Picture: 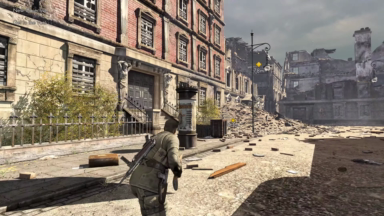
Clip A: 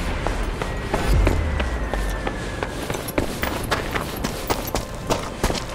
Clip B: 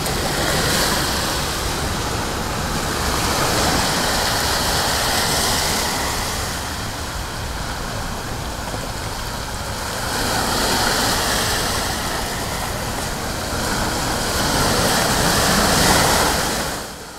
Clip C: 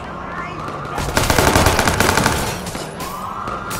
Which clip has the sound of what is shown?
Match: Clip A